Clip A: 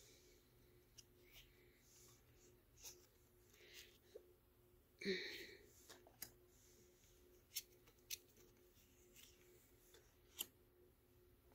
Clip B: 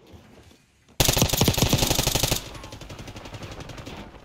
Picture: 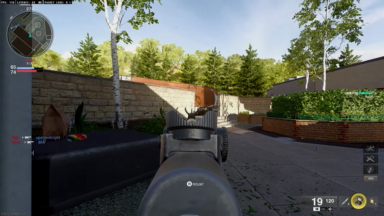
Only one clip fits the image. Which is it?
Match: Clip B